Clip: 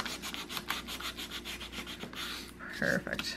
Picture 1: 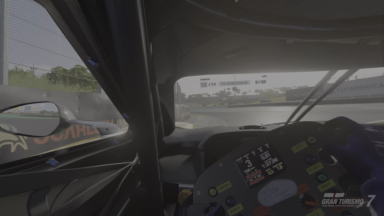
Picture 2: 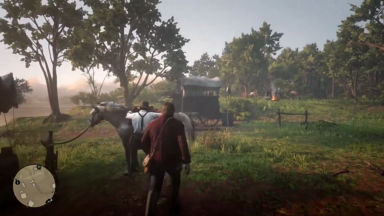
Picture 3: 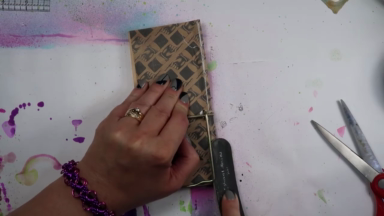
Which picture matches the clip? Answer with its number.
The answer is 3